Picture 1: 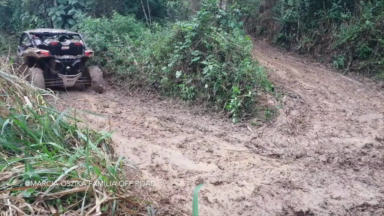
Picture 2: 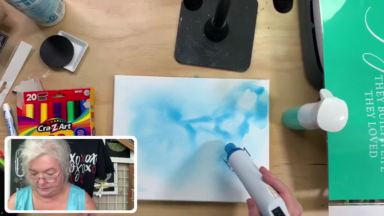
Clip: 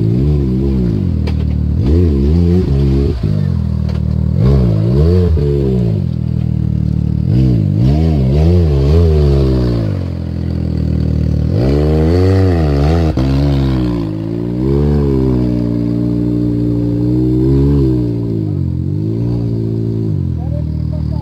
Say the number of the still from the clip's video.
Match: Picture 1